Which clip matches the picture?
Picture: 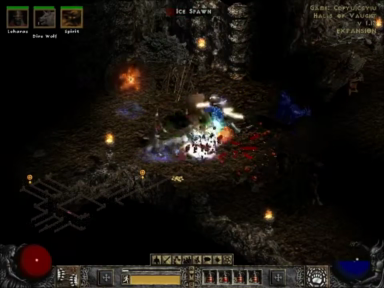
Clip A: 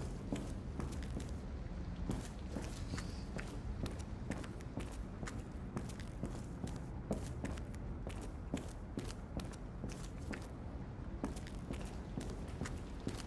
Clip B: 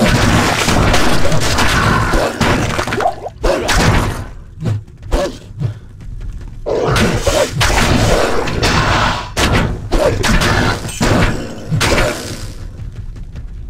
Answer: B